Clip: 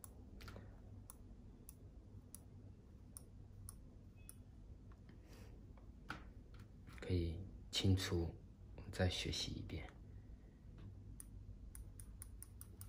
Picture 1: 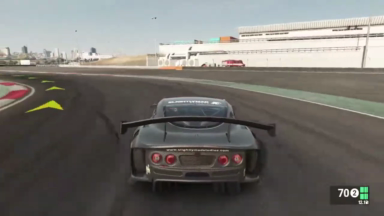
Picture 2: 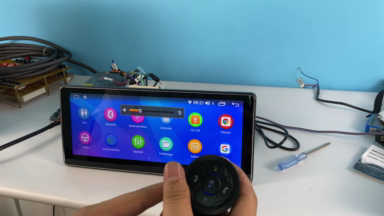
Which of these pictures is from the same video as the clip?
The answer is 2